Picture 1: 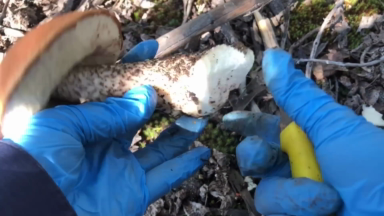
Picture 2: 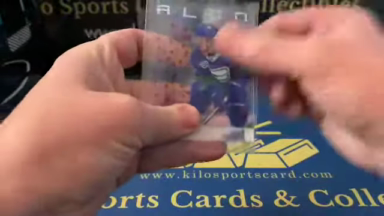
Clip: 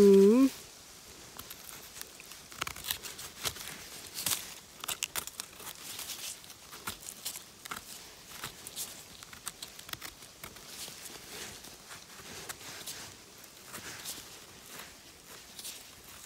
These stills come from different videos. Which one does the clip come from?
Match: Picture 1